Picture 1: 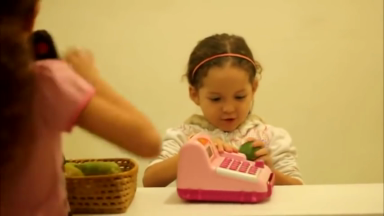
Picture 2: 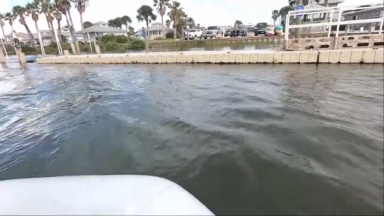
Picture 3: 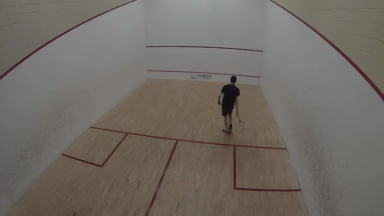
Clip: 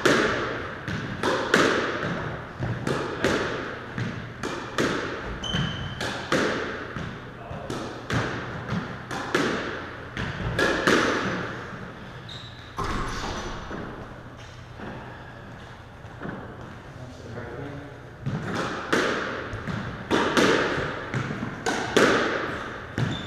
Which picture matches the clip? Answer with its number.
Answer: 3